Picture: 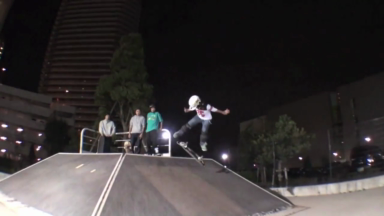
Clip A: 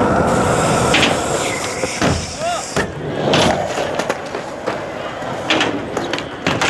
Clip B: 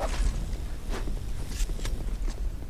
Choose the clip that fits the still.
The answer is A